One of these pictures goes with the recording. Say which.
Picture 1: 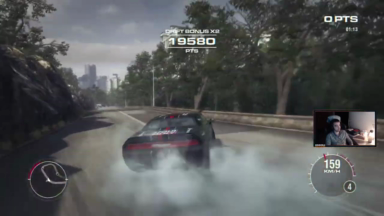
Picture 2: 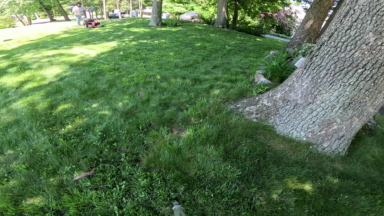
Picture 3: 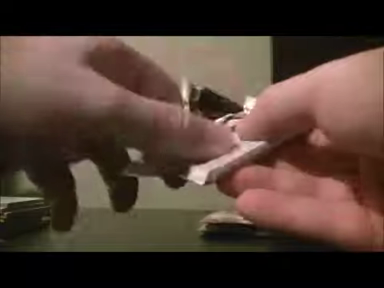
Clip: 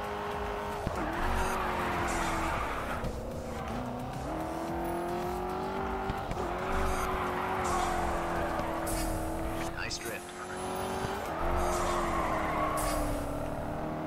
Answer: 1